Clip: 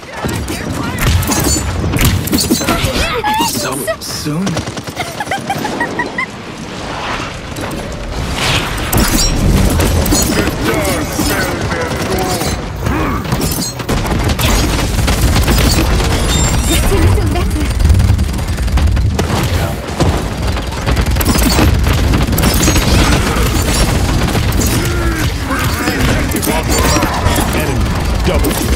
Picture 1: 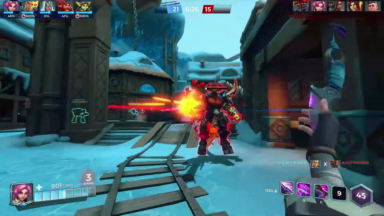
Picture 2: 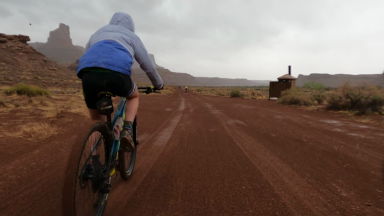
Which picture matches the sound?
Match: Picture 1